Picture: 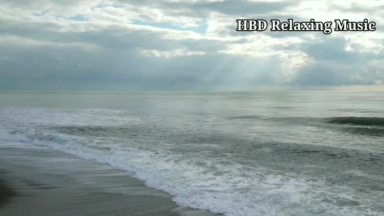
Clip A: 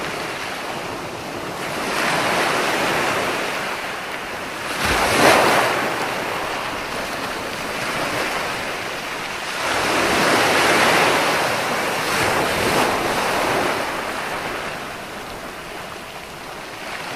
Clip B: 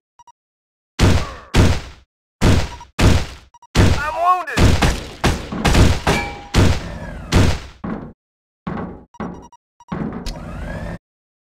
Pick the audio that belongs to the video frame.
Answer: A